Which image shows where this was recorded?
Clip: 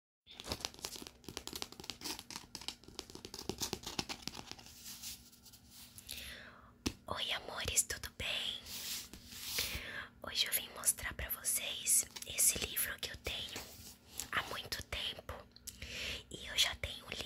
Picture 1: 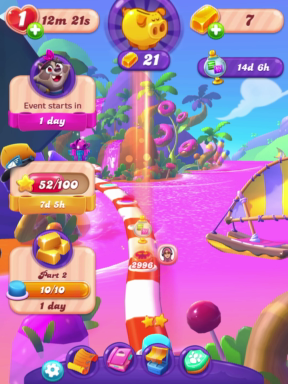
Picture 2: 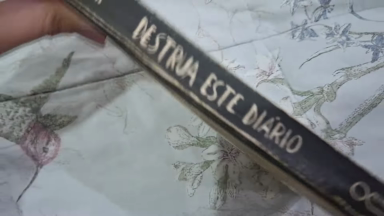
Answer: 2